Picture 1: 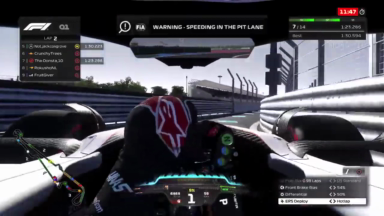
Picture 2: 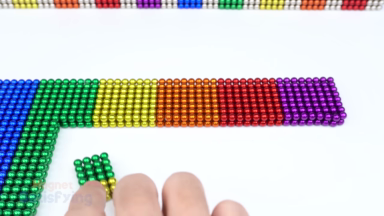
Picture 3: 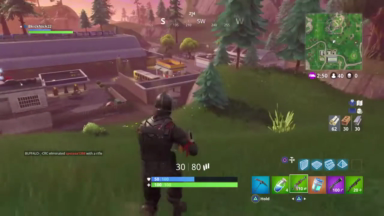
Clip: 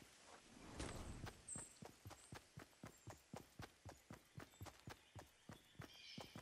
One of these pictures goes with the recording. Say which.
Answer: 3